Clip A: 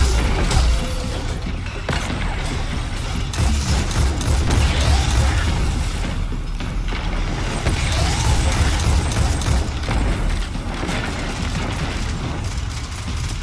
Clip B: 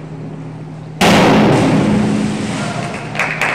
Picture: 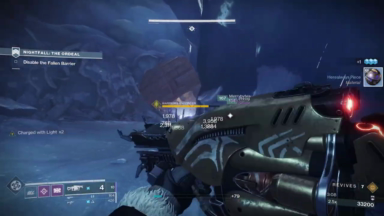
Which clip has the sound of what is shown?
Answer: A